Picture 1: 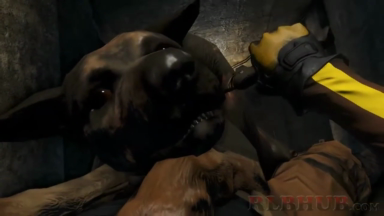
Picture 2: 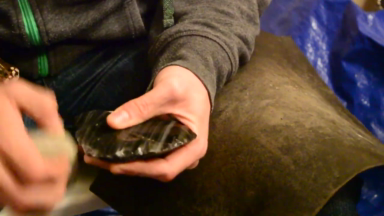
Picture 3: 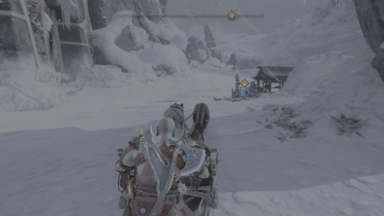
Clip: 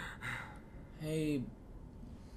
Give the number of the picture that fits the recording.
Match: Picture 1